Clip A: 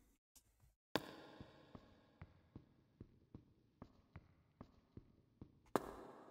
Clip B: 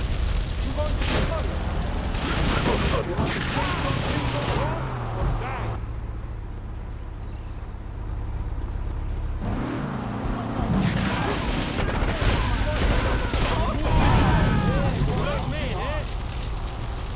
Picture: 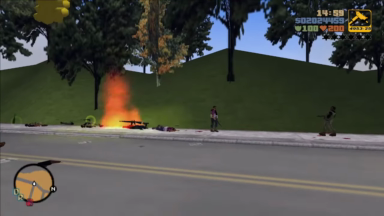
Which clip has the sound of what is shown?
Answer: B